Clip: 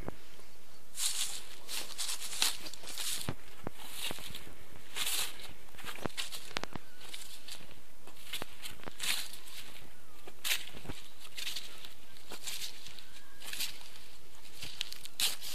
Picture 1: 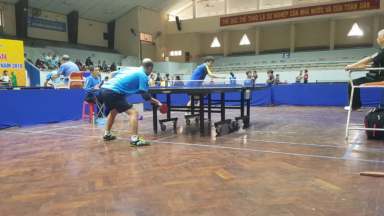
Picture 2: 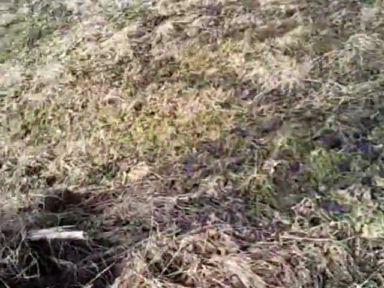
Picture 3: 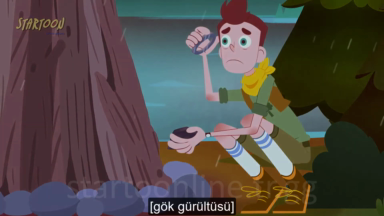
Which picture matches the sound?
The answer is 2